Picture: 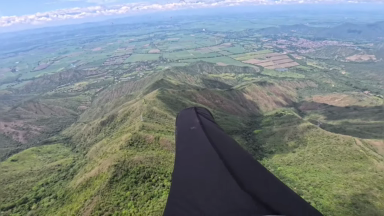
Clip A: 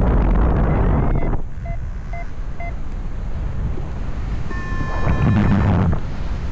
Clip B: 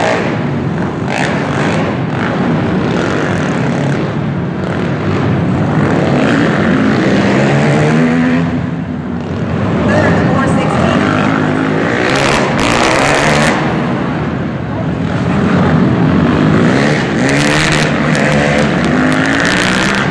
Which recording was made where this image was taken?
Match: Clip A